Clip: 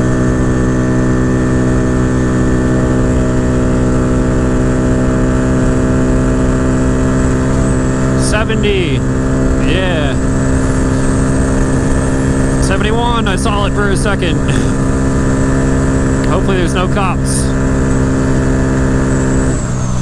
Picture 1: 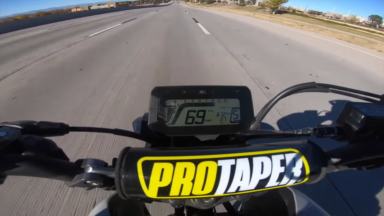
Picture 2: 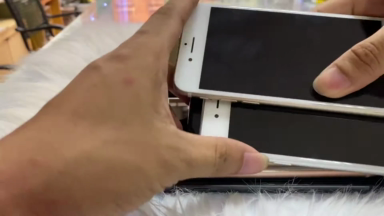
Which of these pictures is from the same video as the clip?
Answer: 1